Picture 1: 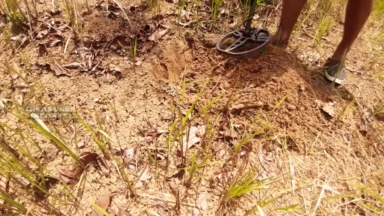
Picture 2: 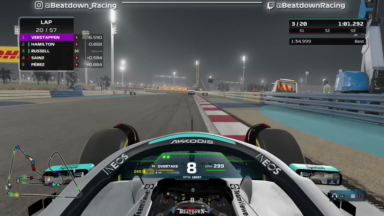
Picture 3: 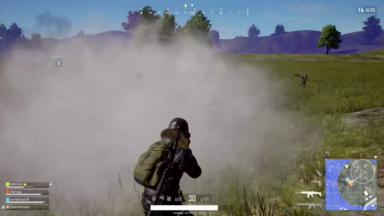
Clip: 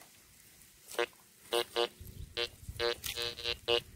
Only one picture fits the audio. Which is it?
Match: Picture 1